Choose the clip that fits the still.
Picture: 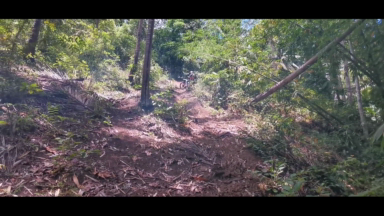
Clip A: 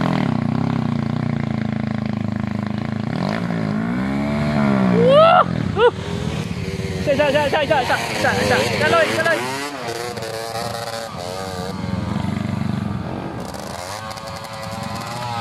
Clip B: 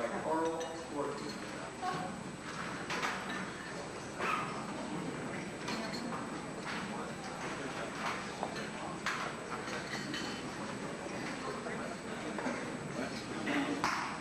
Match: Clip A